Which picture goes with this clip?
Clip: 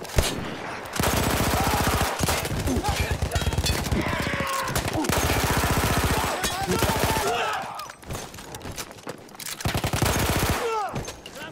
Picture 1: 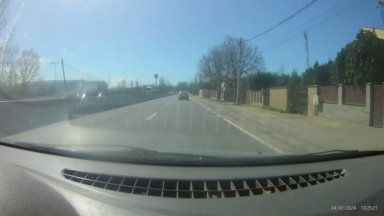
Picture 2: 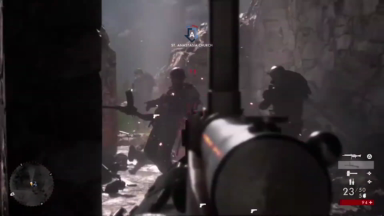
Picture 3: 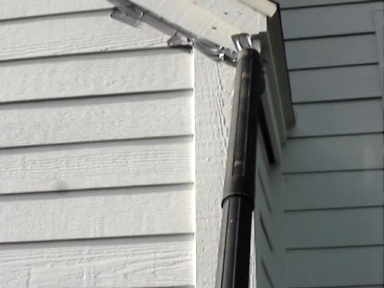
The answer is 2